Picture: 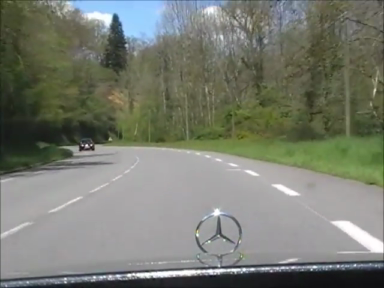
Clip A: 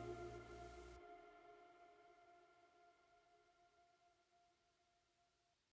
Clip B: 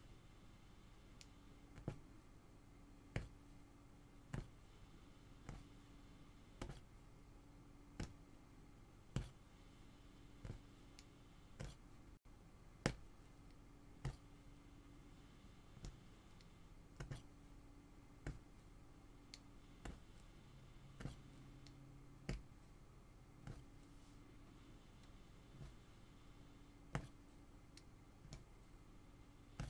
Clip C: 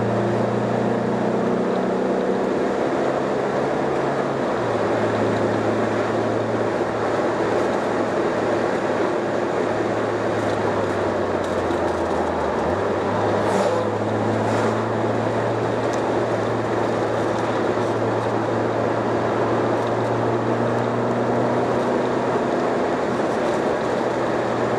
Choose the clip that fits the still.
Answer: C